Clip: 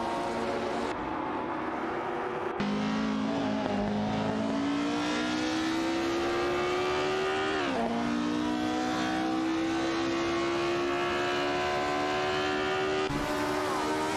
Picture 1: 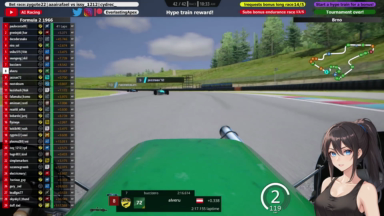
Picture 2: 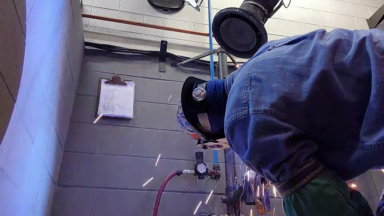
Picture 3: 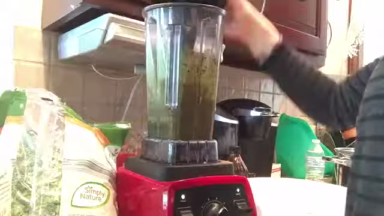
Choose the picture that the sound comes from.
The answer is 1